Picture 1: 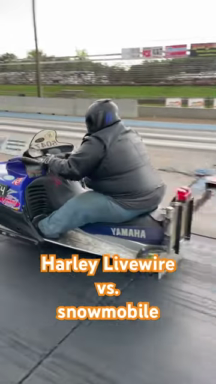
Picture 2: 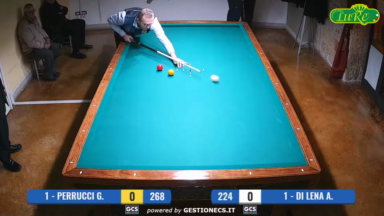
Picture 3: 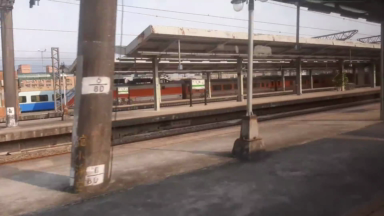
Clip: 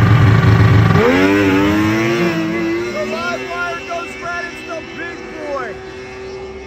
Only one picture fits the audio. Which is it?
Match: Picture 1